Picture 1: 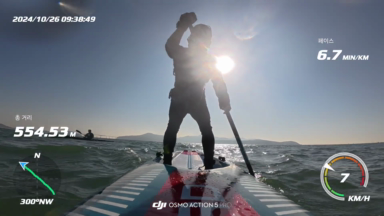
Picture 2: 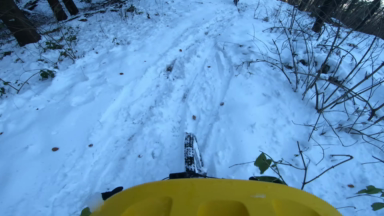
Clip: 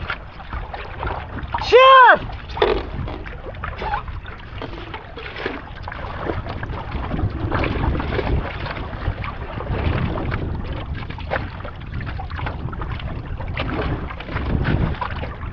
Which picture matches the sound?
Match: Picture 1